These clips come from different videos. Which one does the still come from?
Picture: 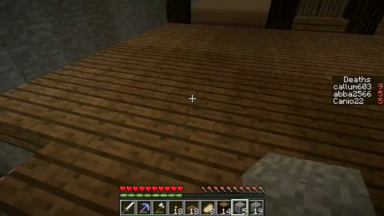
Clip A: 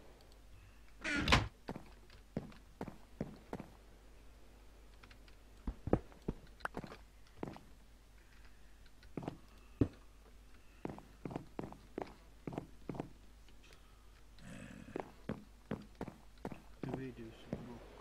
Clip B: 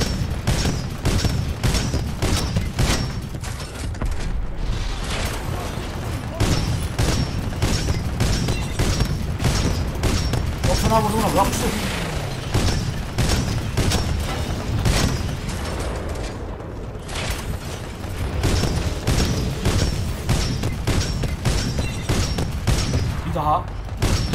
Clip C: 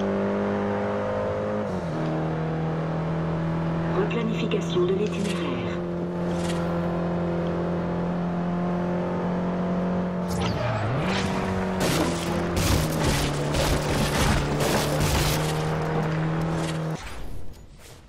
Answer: A